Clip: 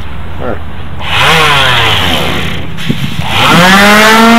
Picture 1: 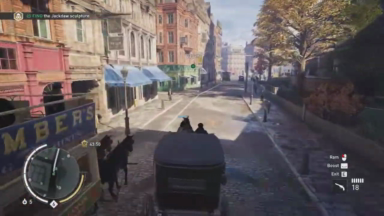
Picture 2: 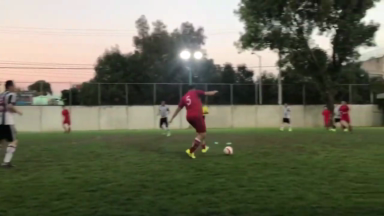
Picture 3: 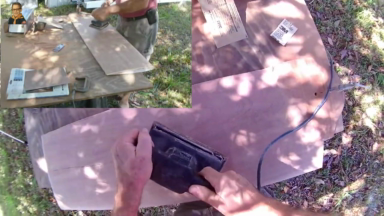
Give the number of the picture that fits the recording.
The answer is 3